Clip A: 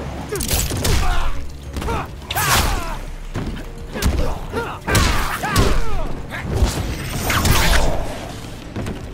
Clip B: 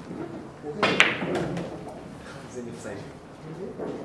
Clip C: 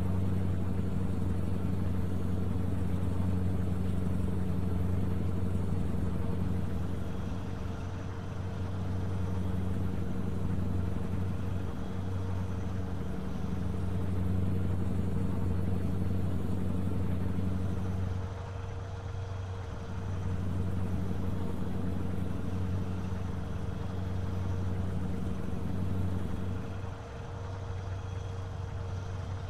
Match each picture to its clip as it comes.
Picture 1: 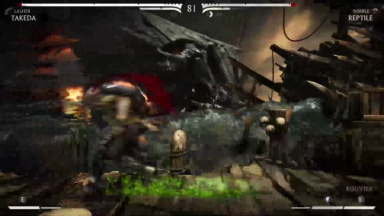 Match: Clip A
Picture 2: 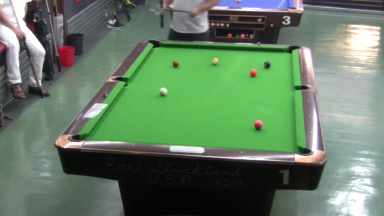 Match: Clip B